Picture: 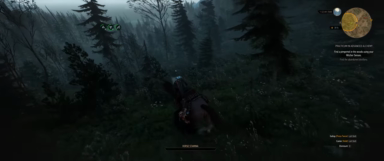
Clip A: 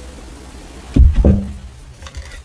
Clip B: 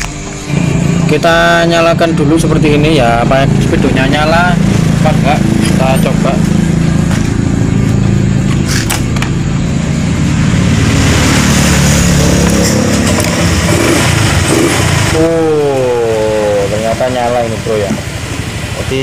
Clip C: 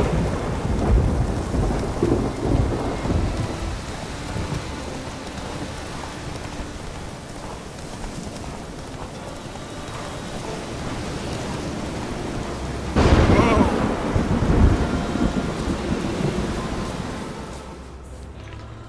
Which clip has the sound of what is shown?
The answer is C